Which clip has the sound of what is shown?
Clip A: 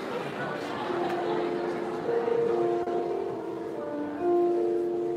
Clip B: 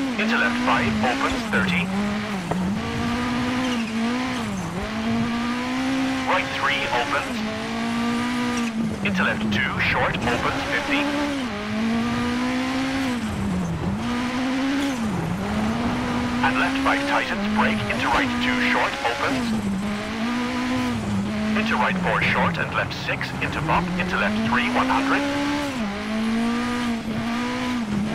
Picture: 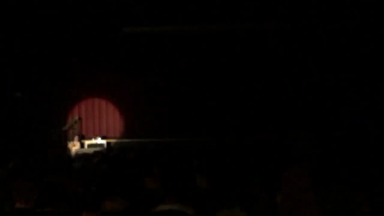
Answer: A